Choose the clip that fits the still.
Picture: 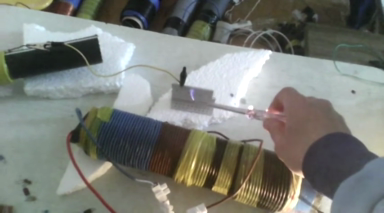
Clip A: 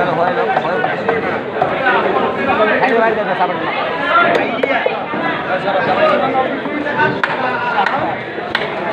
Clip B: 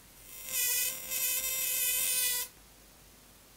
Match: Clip B